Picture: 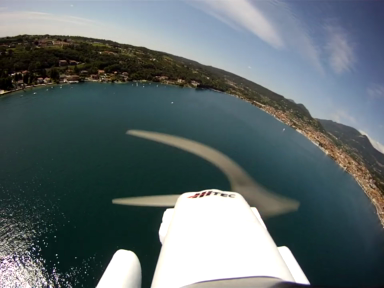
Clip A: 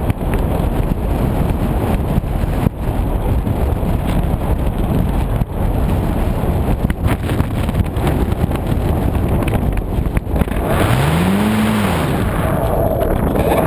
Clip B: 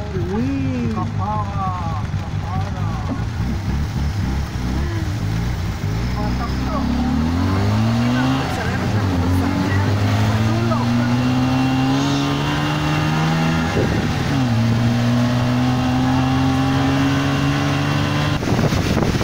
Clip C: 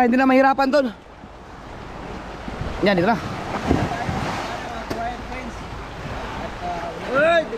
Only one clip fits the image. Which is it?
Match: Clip A